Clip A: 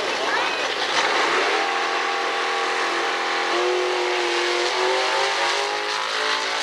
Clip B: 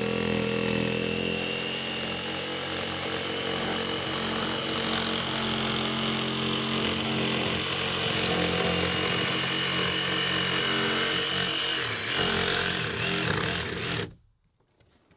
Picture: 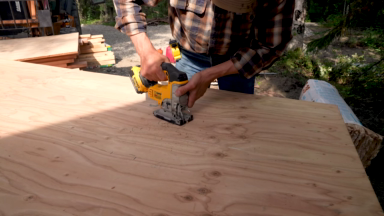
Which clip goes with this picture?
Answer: B